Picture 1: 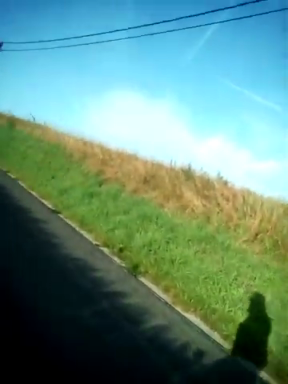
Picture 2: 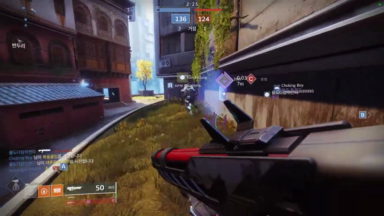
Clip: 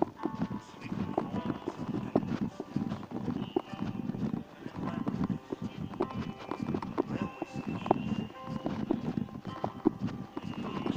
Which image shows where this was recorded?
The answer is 1